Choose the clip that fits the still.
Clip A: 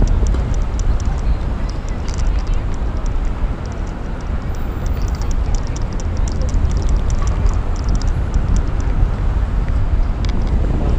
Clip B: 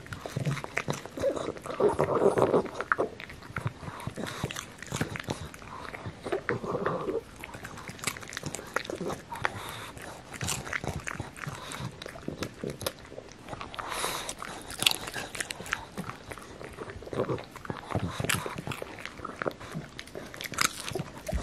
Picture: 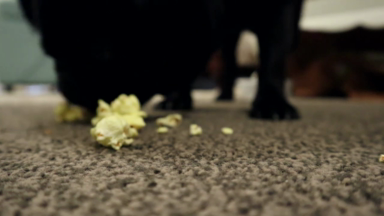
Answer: B